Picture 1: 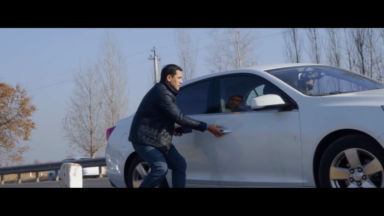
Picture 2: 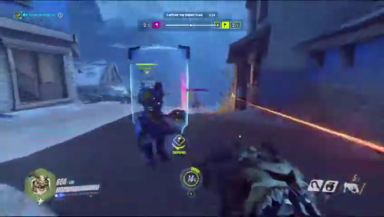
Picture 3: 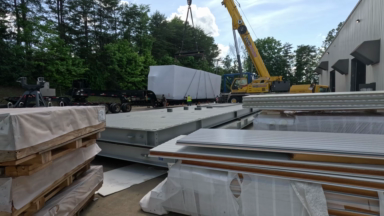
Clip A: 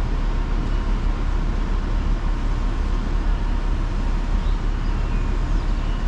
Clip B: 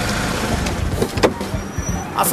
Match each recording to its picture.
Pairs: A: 3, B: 1